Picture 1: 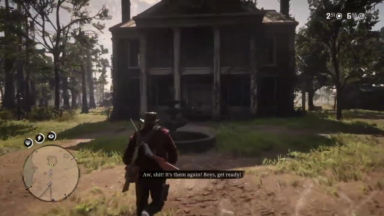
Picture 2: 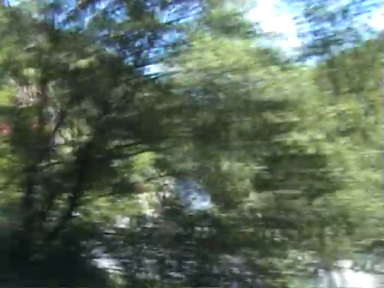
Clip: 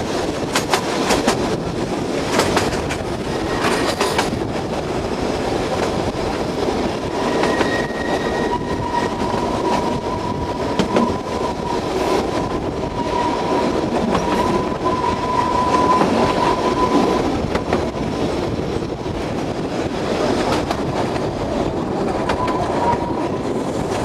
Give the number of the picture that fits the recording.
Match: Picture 2